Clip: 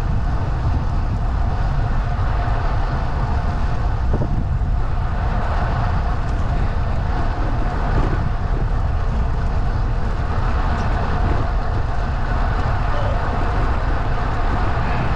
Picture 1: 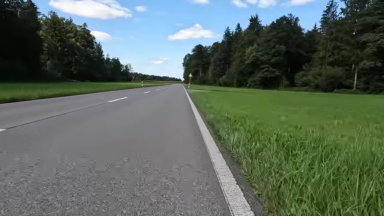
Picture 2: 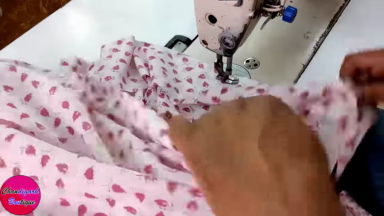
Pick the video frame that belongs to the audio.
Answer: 1